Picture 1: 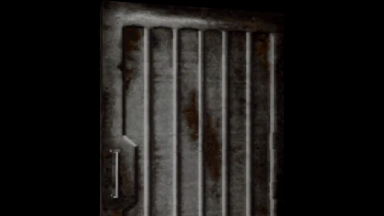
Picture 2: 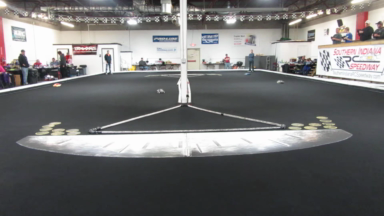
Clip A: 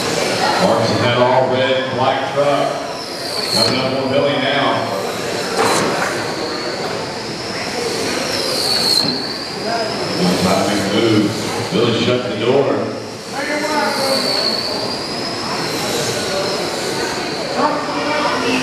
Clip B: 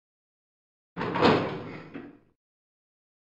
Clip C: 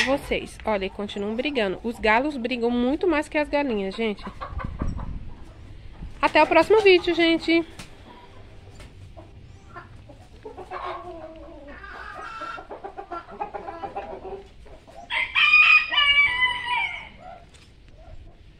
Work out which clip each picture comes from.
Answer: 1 B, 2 A